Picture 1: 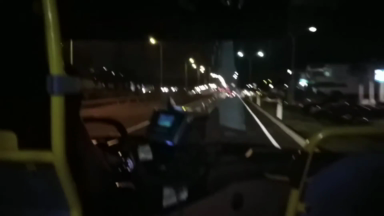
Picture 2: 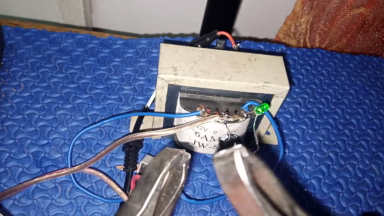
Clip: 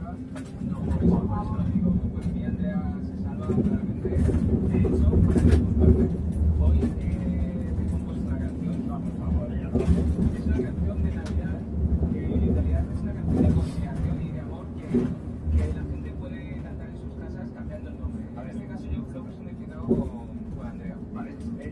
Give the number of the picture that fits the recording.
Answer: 1